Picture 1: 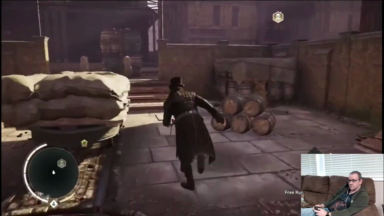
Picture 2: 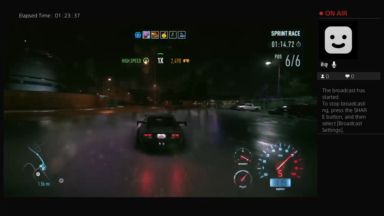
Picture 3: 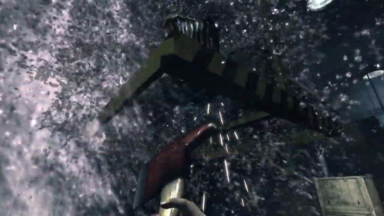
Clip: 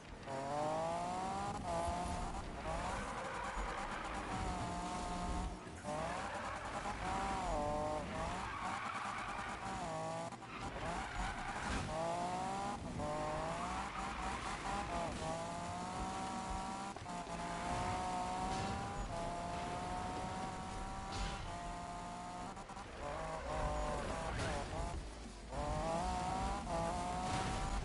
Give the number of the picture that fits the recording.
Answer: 2